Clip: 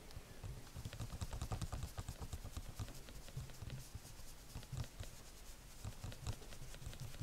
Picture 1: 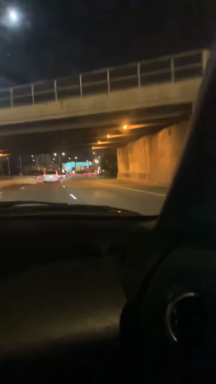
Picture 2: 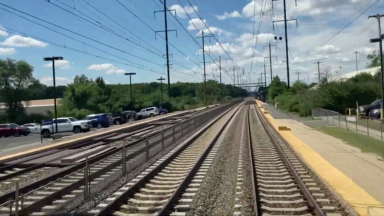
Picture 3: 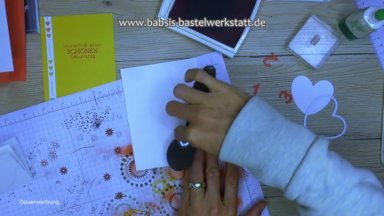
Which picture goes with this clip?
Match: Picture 3